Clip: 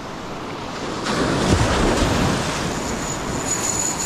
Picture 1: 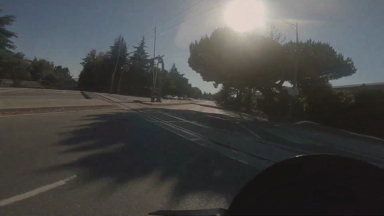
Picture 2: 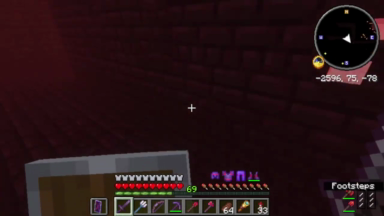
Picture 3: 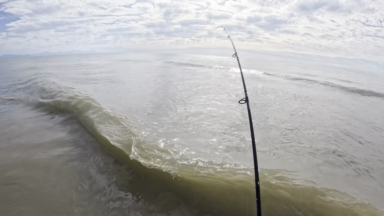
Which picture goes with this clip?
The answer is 3